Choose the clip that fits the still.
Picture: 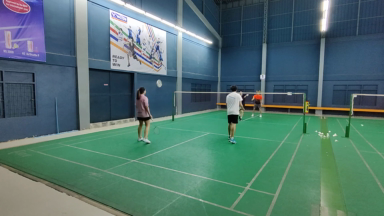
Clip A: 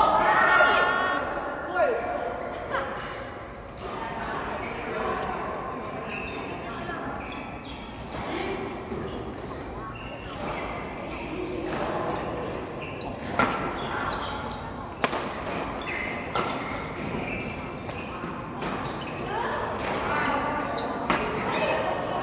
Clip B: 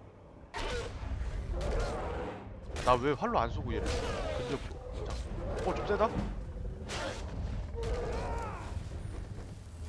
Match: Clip A